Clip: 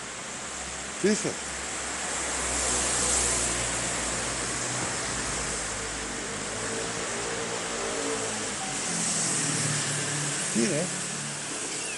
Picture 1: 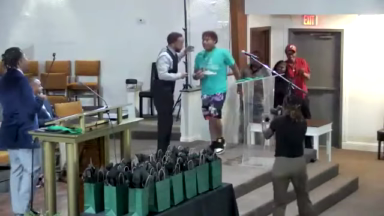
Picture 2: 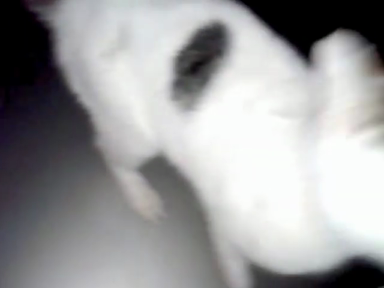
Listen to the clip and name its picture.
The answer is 2